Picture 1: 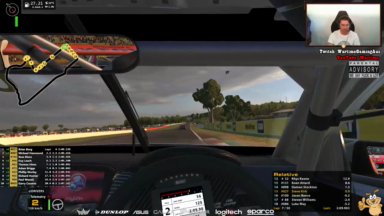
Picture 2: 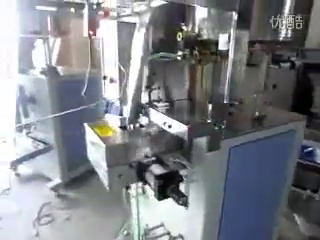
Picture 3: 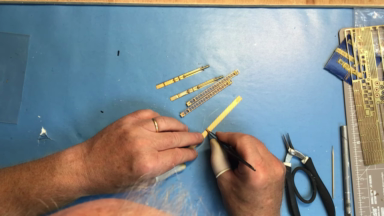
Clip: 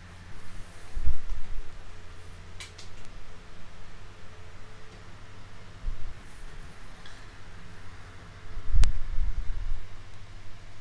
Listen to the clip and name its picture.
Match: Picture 3